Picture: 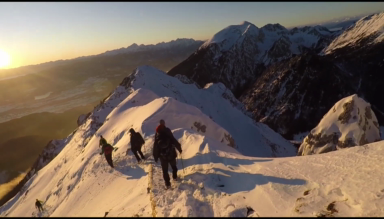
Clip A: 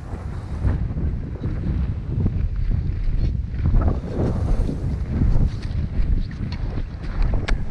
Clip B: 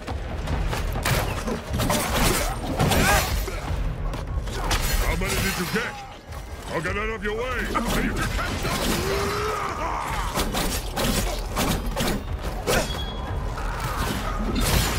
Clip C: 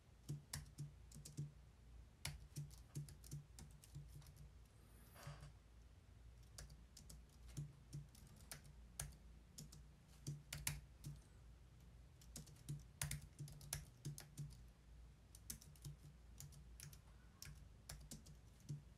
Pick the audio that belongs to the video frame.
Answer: A